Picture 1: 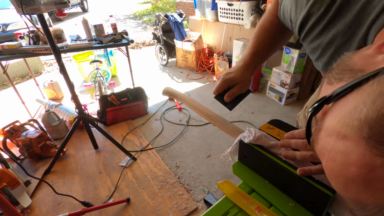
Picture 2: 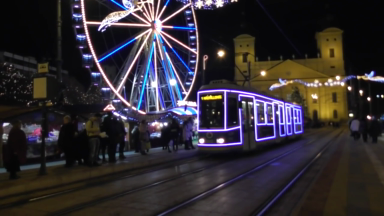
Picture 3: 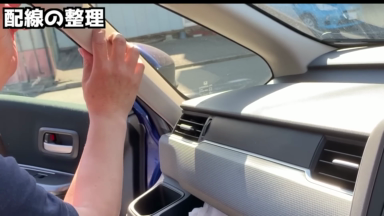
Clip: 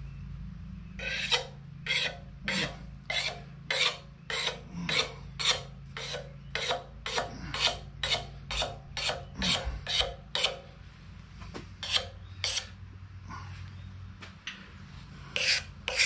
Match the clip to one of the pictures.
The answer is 1